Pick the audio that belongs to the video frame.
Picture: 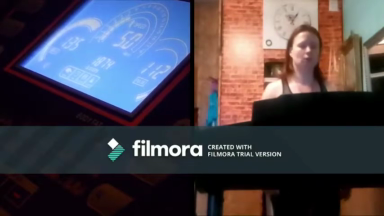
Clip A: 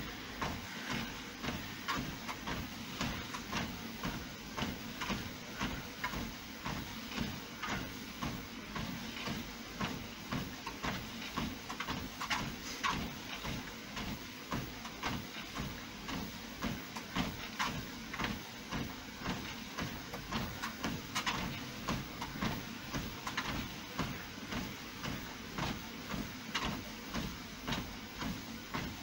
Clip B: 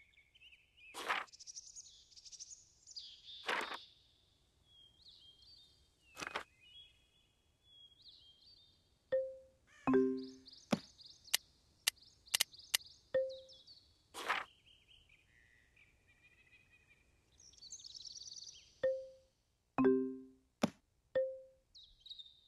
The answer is A